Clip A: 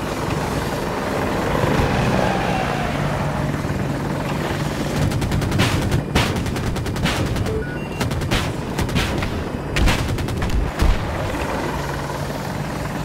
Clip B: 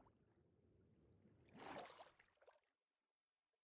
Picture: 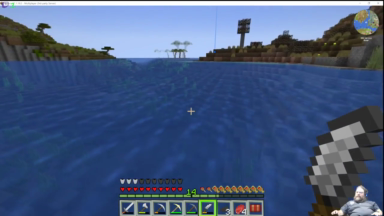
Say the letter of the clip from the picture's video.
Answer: B